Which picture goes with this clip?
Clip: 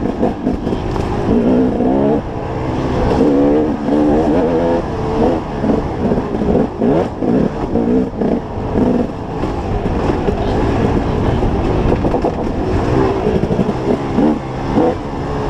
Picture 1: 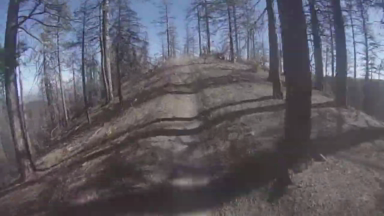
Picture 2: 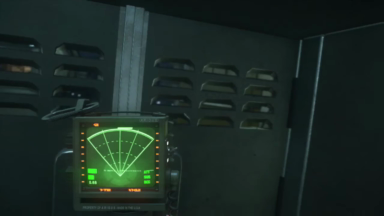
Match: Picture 1